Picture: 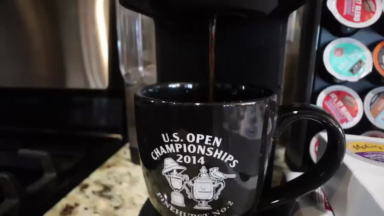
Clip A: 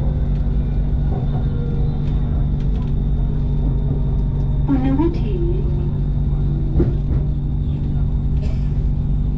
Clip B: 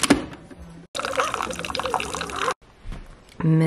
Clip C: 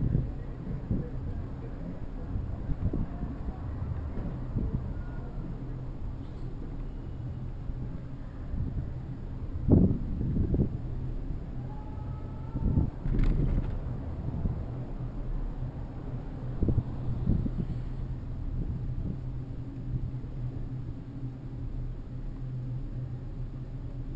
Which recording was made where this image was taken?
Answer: B